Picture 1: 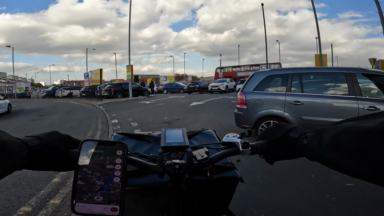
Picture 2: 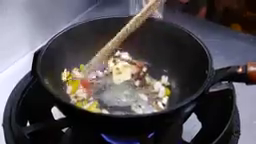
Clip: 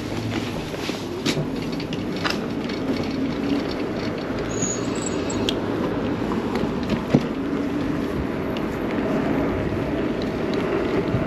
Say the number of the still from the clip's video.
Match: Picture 1